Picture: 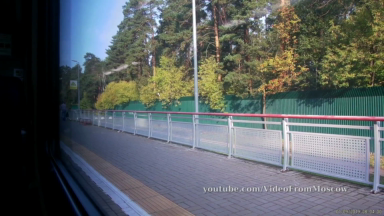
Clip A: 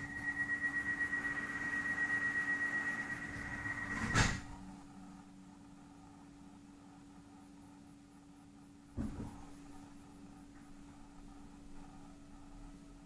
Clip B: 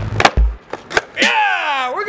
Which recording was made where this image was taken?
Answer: A